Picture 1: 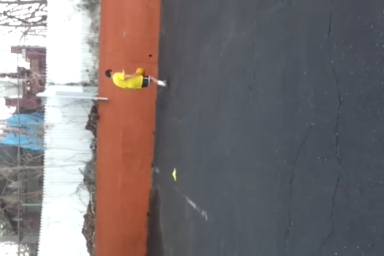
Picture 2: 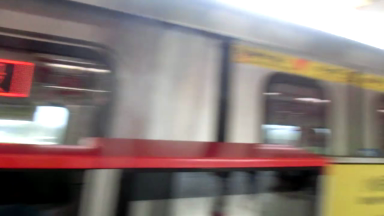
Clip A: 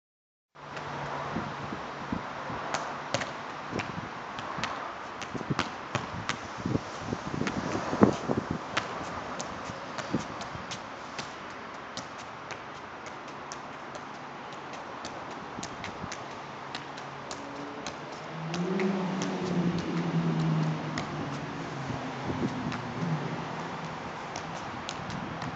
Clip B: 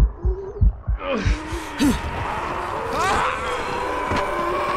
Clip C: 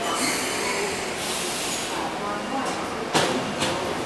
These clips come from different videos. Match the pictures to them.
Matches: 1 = A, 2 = C